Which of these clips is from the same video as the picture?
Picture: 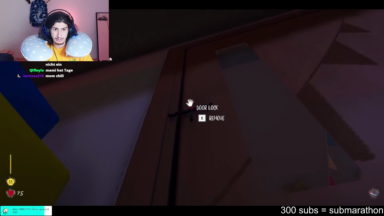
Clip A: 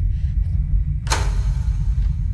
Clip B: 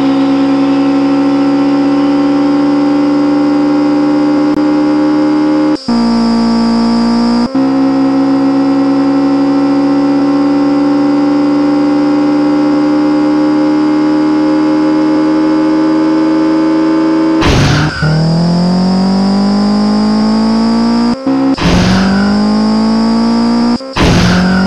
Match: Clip A